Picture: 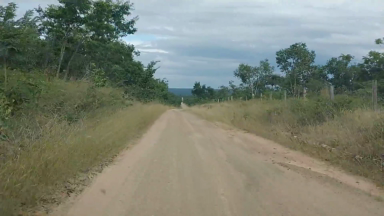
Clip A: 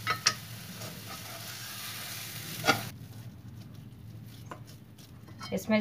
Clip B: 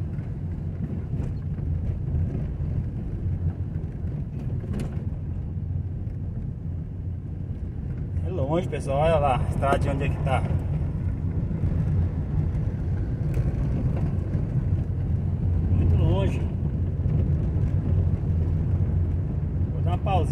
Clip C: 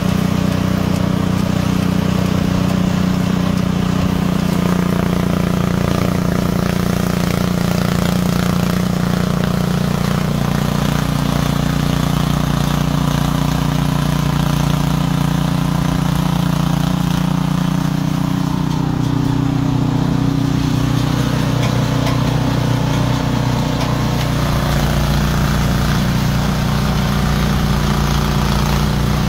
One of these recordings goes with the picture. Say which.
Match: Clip B